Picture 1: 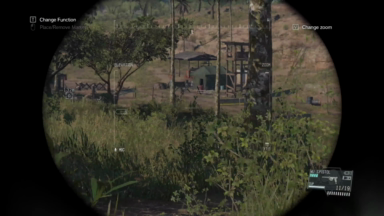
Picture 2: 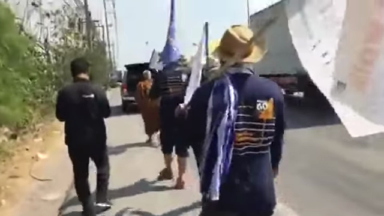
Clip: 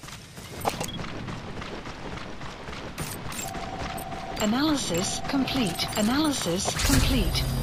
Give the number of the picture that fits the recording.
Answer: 1